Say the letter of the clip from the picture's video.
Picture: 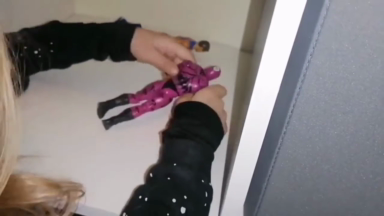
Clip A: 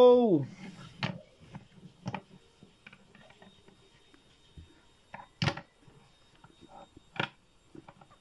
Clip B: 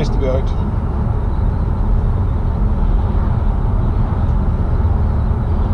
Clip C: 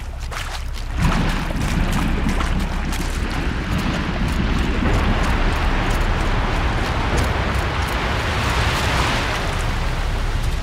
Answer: A